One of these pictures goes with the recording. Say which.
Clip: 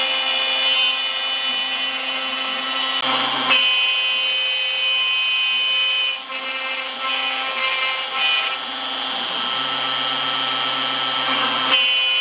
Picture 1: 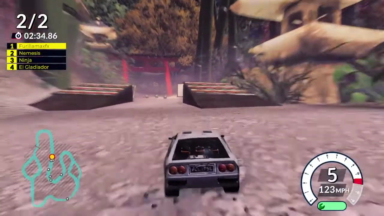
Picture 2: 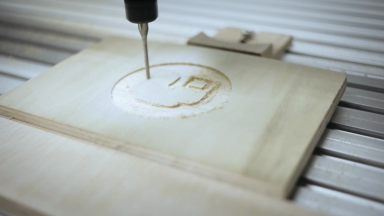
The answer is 2